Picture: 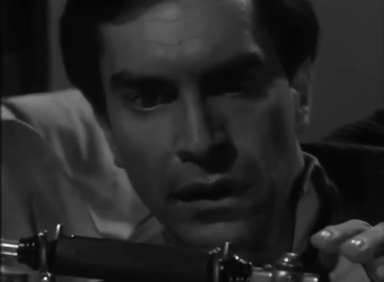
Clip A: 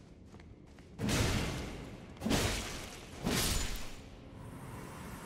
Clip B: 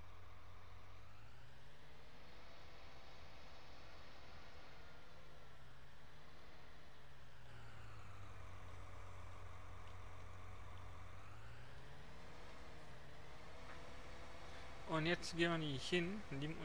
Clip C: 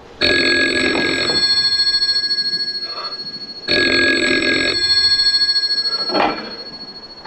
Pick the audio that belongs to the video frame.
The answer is C